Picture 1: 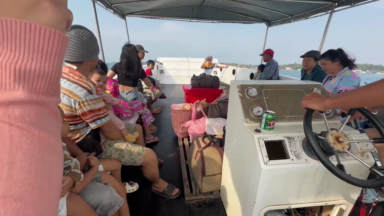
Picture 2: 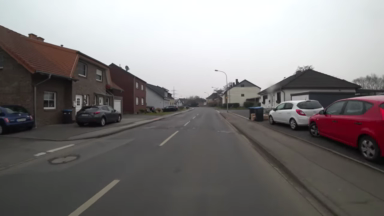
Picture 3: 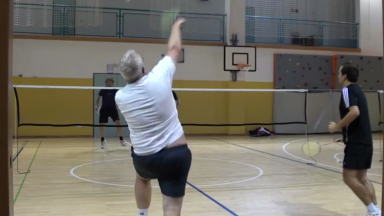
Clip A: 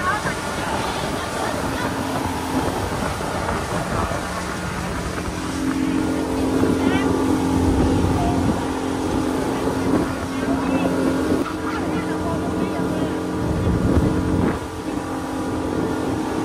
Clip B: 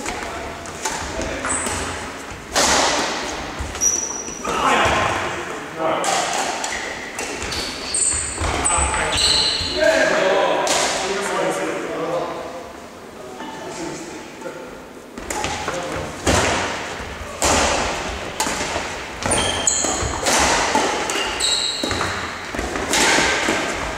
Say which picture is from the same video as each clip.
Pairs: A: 1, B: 3